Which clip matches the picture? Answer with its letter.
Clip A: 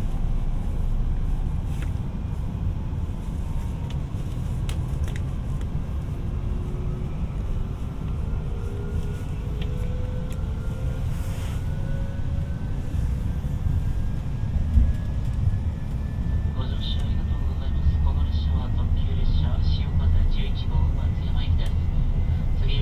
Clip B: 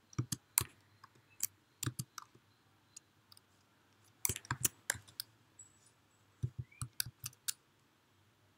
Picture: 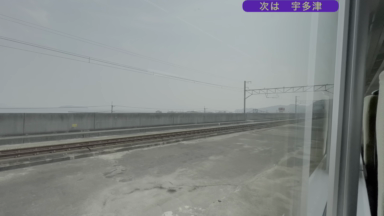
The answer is A